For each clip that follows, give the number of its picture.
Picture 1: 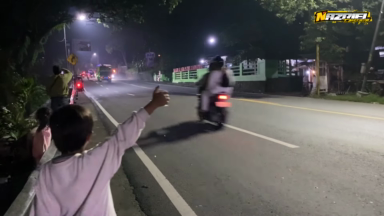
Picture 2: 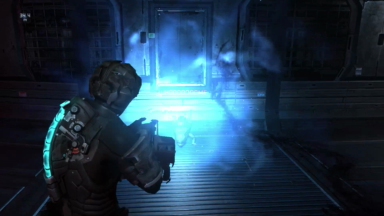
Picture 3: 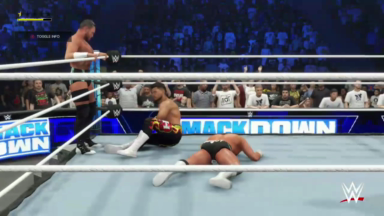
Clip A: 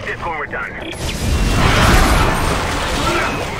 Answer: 2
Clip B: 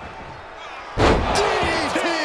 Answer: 3